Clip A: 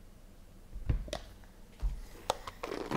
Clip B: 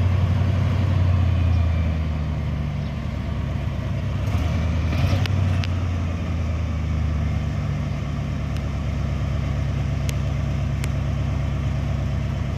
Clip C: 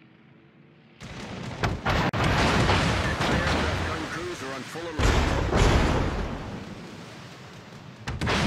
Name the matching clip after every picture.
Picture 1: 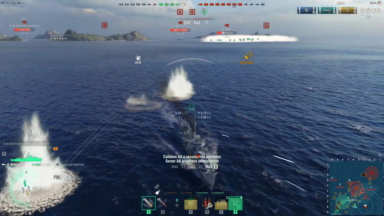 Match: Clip C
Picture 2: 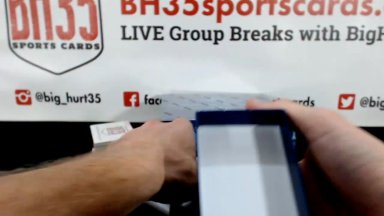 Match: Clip A